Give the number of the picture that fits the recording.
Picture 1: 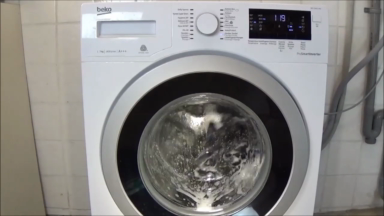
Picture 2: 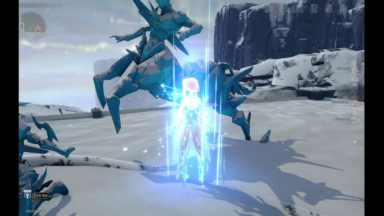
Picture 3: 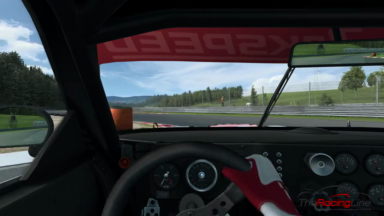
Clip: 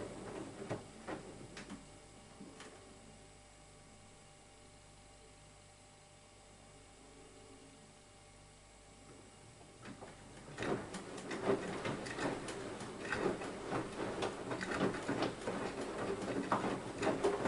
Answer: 1